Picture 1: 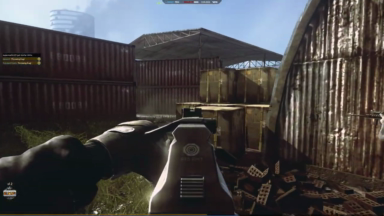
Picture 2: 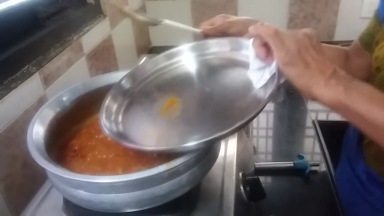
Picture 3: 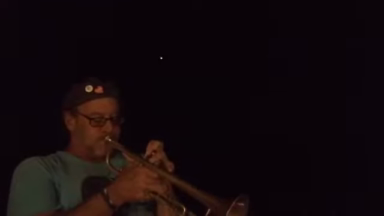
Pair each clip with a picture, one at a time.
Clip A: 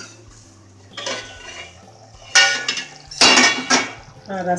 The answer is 2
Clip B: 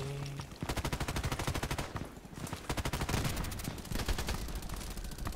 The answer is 1